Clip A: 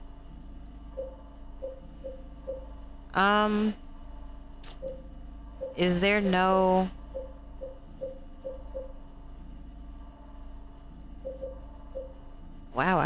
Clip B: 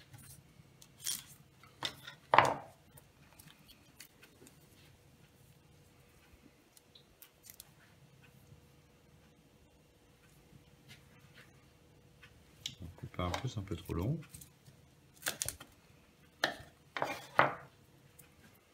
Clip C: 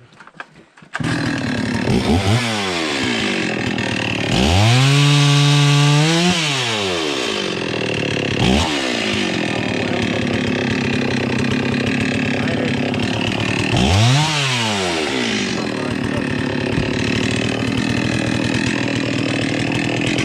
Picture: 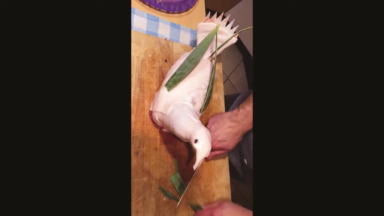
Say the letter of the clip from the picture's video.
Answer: B